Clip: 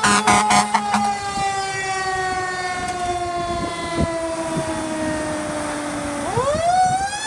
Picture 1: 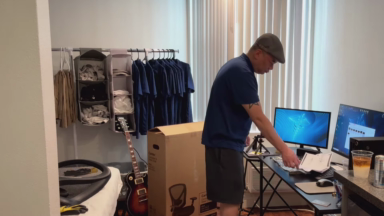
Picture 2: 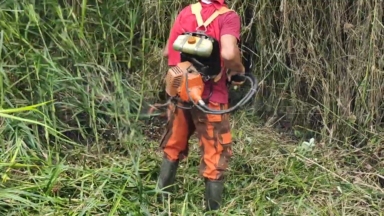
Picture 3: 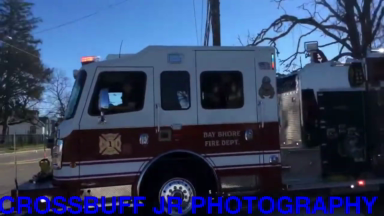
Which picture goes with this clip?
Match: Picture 3